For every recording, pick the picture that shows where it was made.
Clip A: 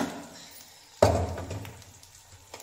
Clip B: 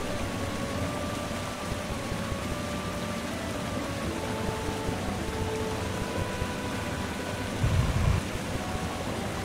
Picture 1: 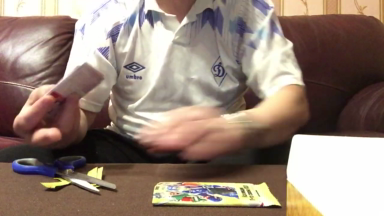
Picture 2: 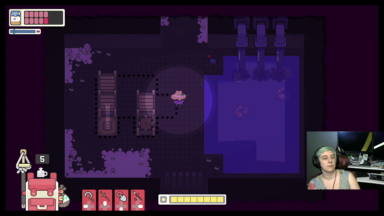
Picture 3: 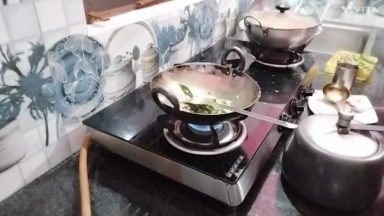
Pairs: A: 3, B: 2